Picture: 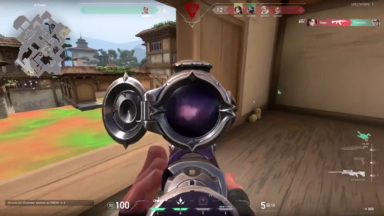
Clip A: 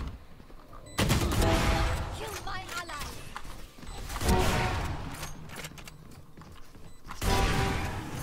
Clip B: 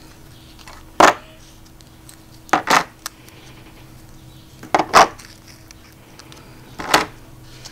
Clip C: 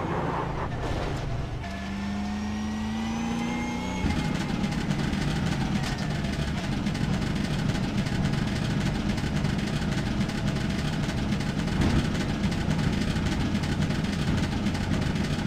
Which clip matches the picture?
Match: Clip A